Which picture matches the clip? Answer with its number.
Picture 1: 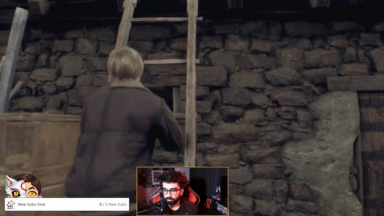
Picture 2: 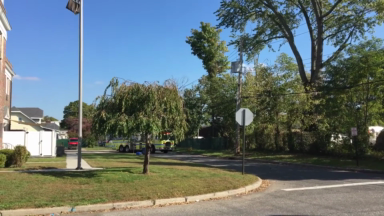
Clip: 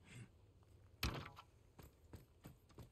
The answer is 1